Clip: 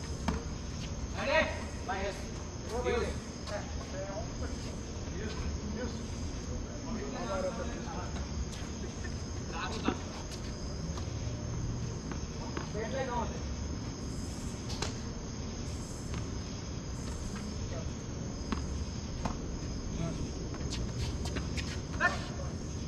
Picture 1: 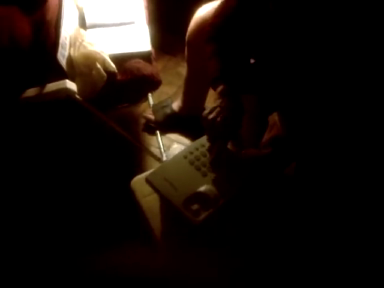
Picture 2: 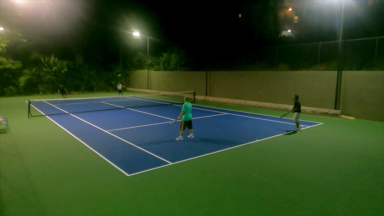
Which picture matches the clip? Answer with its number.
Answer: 2